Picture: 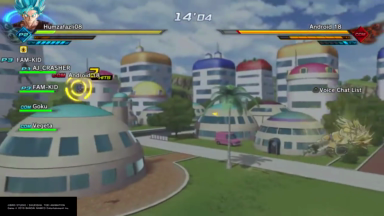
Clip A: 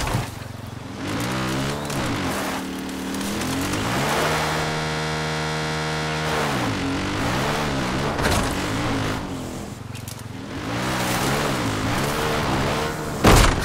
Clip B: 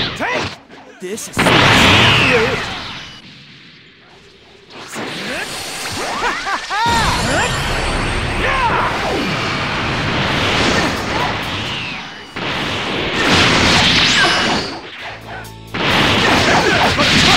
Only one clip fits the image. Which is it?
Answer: B